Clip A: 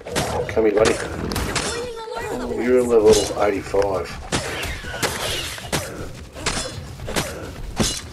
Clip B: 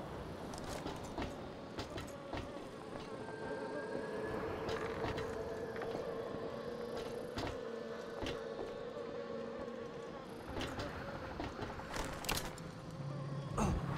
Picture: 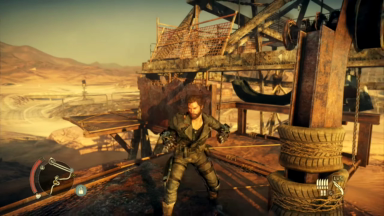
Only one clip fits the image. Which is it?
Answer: B